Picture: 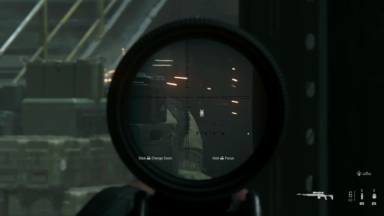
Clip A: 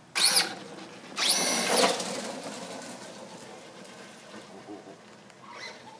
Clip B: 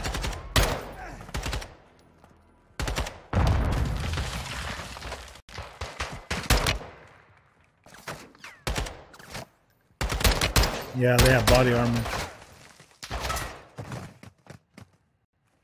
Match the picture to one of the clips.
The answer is B